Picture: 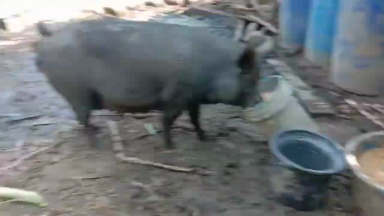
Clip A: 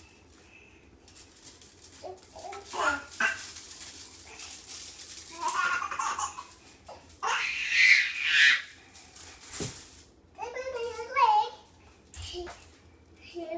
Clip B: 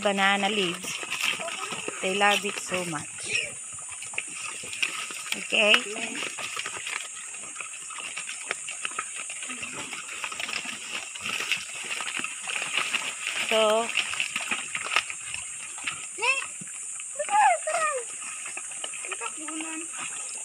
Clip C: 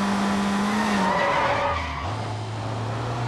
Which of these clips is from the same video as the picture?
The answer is B